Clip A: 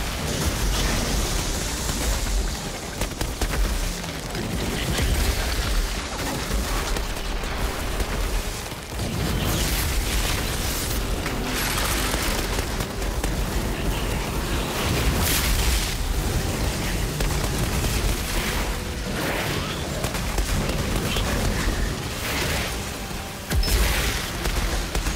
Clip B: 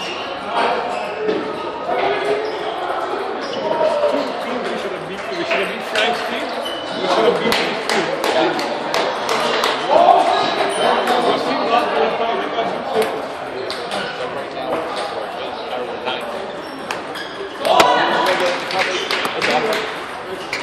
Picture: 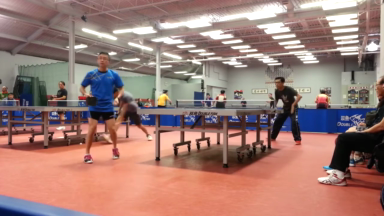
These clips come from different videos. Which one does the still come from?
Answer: B